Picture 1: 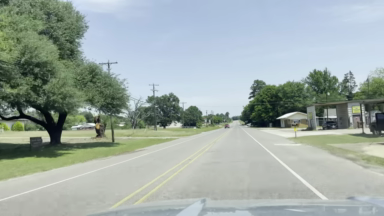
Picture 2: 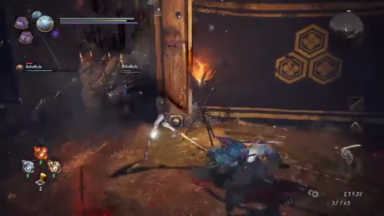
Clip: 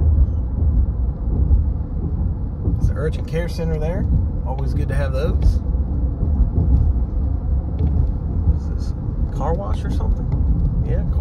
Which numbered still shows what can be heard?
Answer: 1